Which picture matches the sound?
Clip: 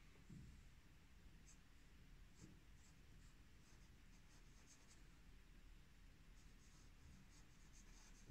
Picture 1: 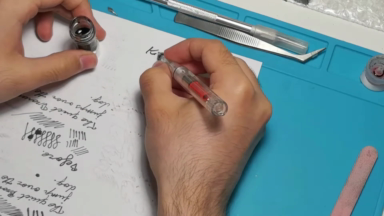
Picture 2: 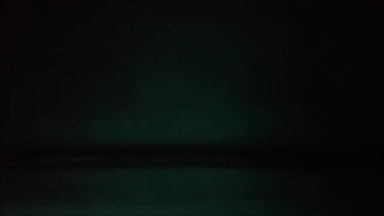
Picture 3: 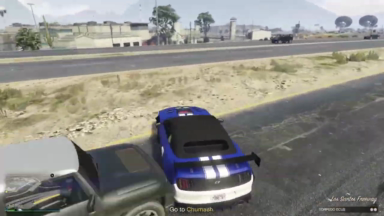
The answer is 1